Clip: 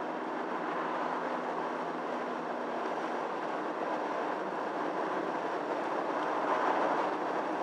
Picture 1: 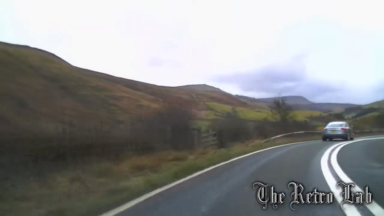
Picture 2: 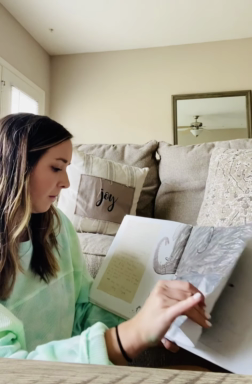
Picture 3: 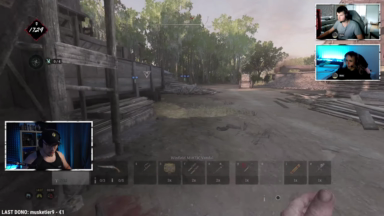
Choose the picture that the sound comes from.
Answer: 1